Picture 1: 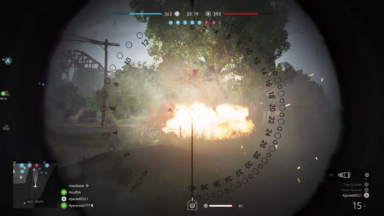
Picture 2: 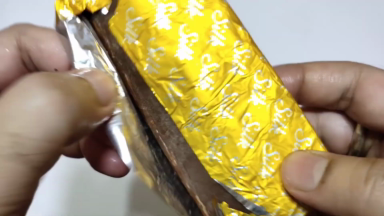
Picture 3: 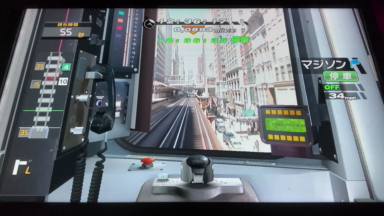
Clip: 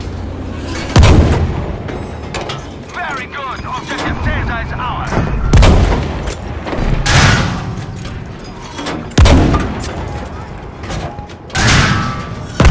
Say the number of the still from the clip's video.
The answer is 1